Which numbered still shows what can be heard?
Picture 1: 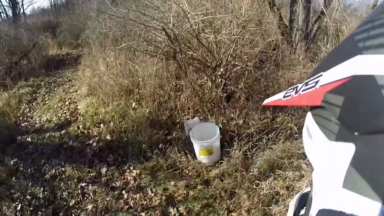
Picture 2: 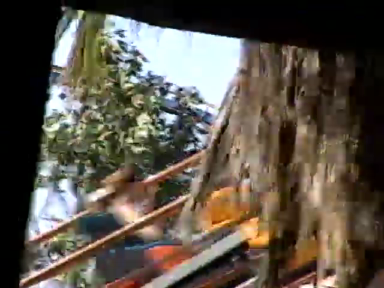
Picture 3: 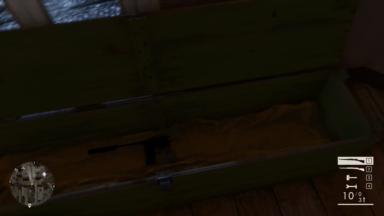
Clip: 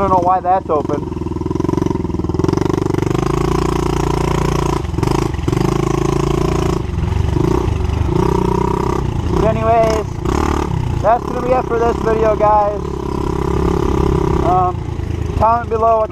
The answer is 1